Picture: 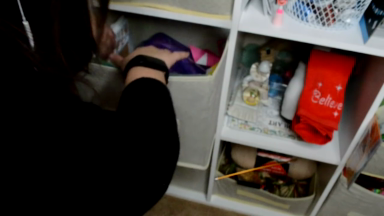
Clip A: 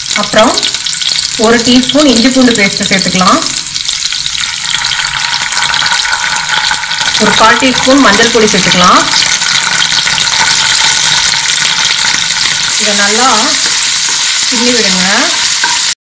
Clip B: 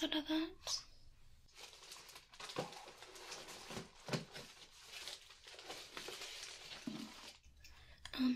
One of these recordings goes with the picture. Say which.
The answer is B